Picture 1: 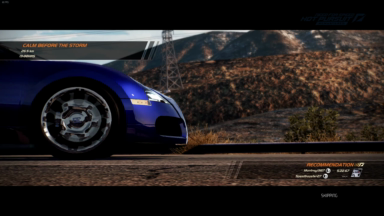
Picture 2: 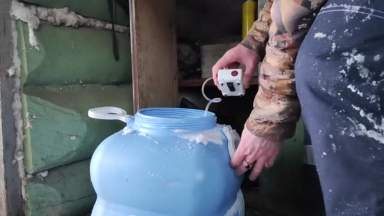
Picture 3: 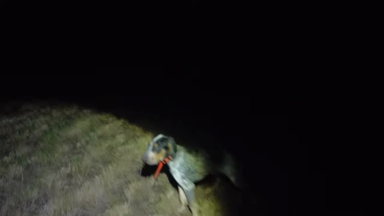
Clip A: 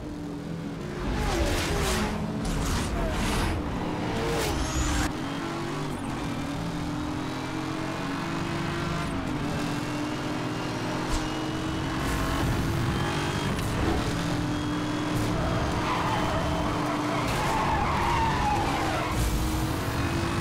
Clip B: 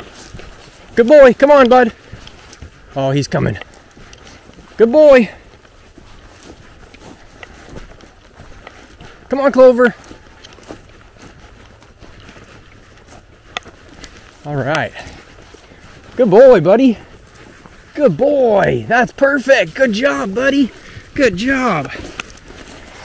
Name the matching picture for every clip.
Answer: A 1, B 3